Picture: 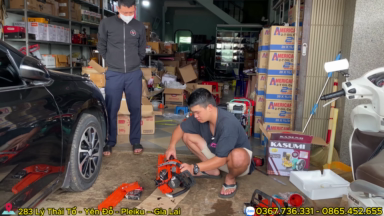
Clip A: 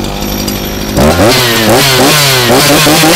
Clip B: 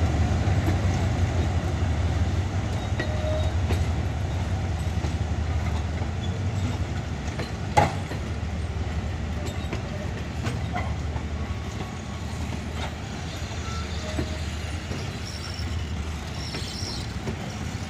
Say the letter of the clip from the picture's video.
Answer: A